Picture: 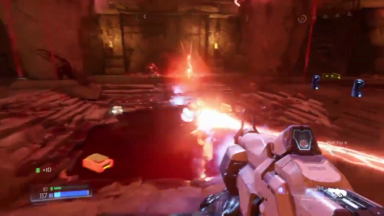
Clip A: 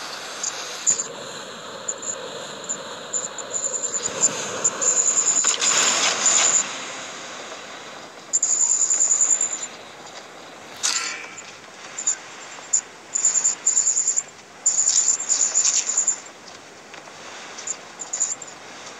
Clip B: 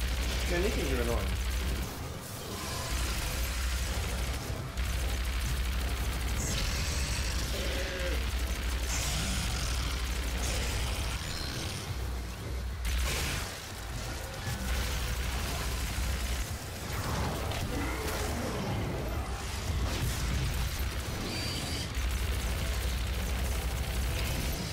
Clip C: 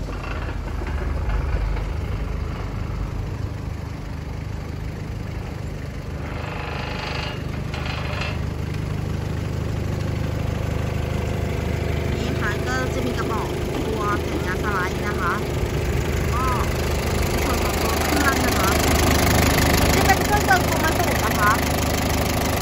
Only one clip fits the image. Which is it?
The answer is B